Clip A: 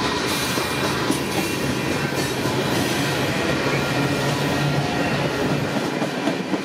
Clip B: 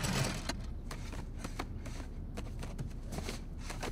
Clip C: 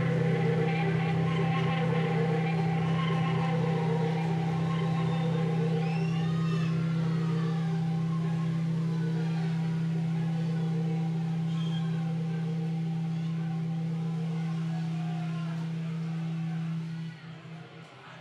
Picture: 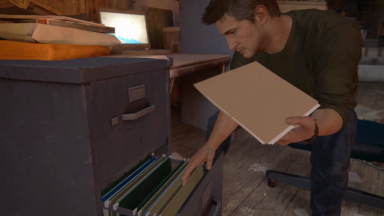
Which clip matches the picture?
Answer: B